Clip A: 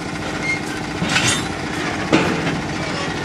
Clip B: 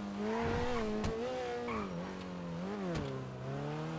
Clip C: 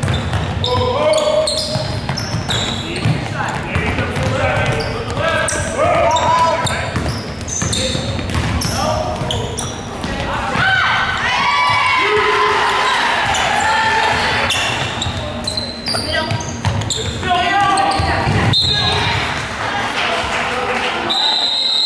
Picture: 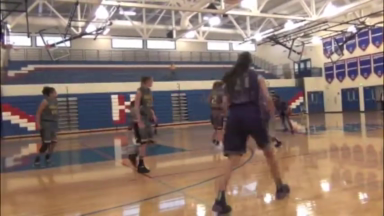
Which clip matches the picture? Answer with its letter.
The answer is C